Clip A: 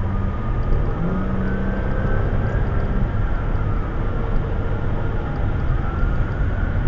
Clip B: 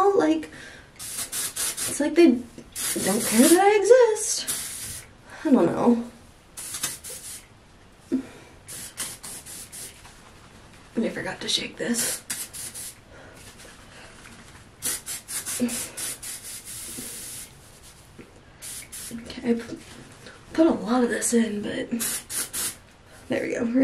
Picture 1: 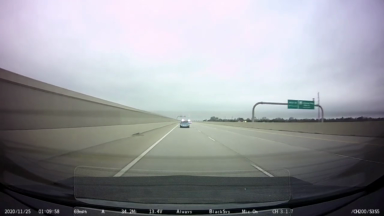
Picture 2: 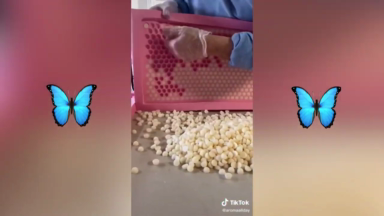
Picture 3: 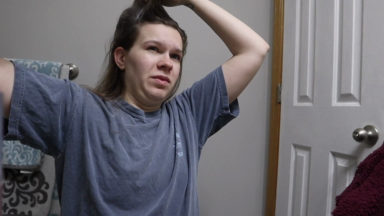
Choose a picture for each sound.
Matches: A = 1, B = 3